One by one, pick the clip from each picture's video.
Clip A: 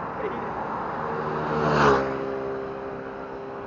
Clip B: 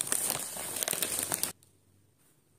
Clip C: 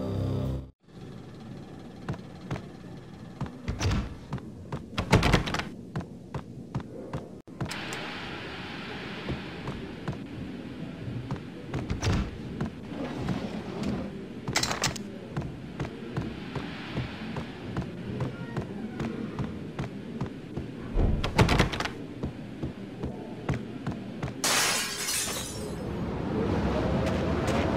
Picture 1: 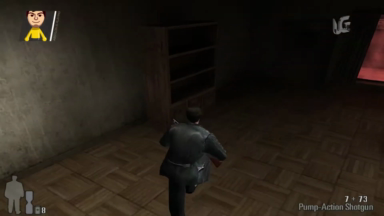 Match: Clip C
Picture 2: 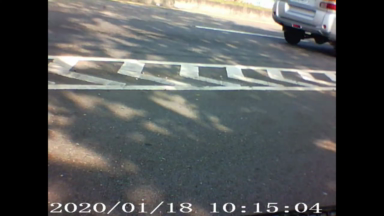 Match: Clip A